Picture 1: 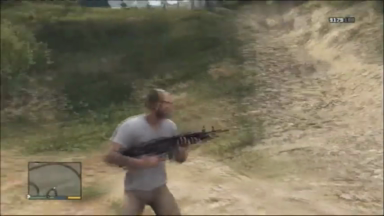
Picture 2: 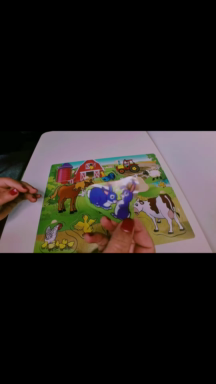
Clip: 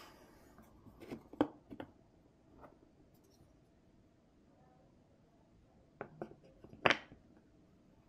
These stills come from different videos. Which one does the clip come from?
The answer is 2